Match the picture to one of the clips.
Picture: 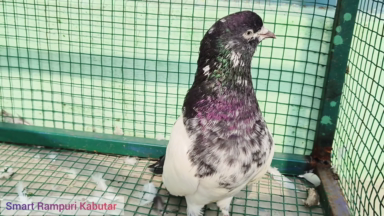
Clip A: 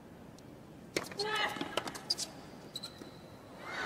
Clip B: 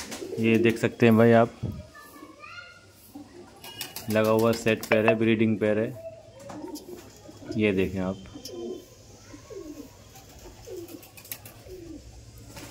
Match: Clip B